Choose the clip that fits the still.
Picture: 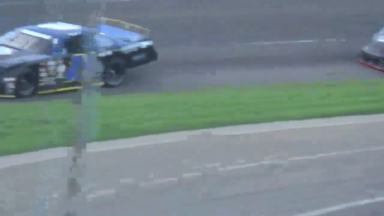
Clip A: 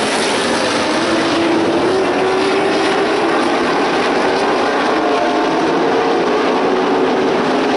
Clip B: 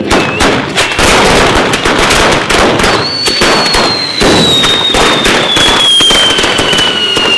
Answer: A